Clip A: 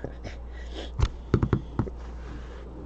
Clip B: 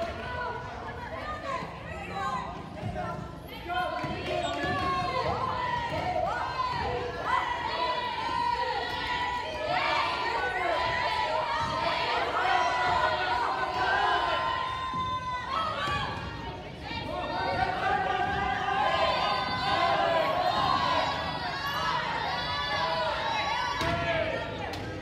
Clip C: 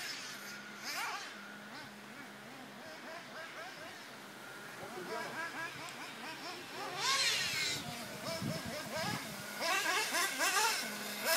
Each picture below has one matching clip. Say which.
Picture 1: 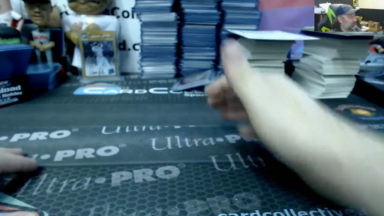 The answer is A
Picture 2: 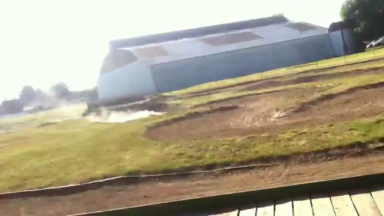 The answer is C